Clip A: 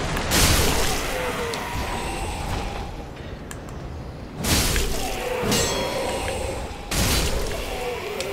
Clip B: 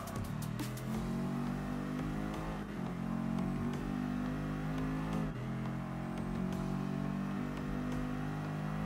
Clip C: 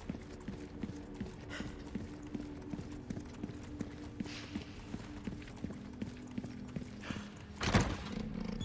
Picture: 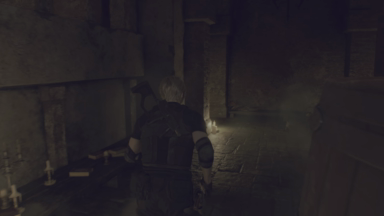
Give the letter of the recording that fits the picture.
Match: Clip C